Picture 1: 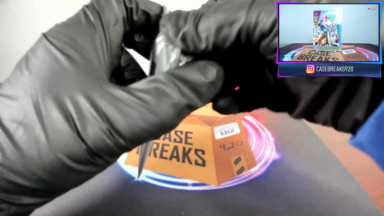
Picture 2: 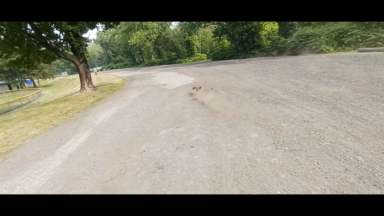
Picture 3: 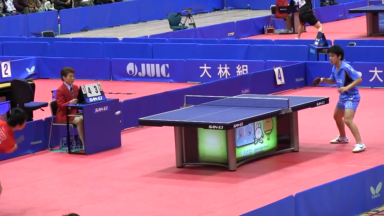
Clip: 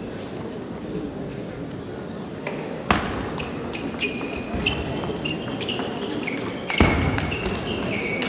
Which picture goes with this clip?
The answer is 3